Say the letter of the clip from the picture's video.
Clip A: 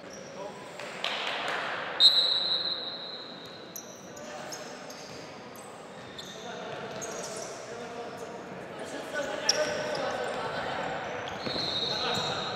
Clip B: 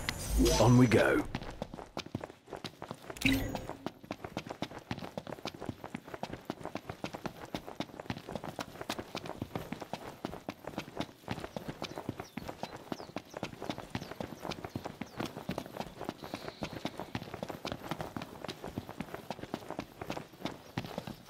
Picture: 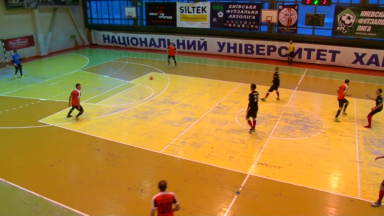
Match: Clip A